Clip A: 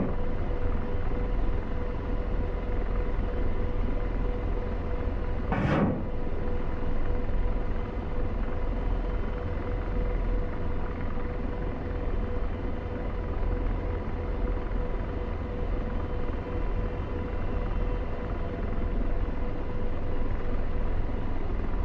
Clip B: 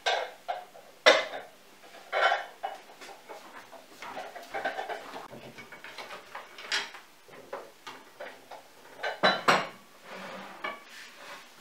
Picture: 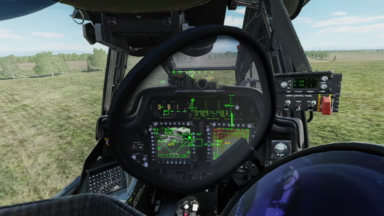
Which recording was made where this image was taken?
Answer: A